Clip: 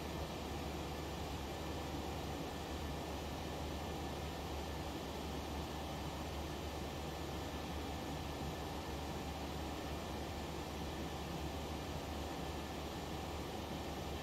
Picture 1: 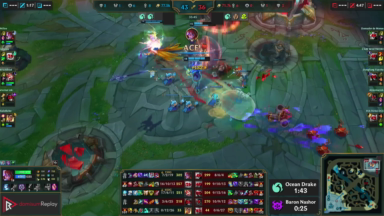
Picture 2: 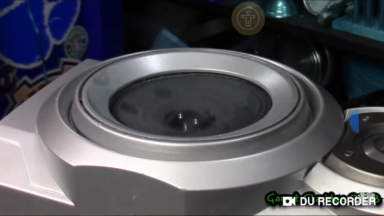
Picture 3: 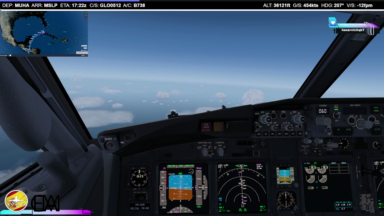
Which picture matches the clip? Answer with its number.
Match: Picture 3